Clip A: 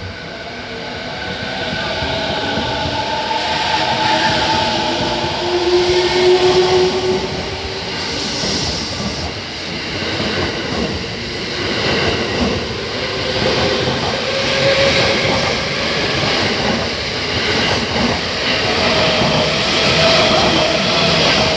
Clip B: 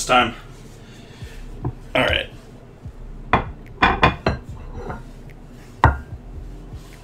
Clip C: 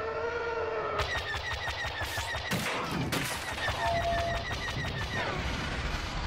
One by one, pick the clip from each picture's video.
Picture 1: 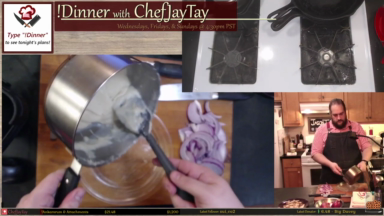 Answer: B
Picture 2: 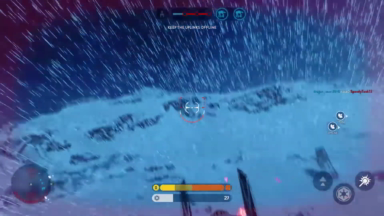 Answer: C